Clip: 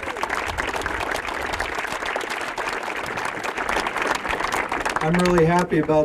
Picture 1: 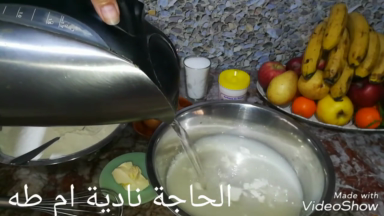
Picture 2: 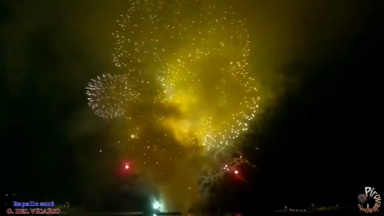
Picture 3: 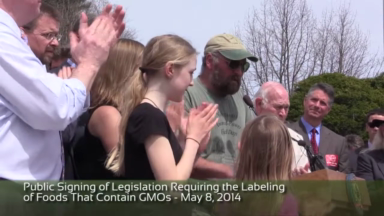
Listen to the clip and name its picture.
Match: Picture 3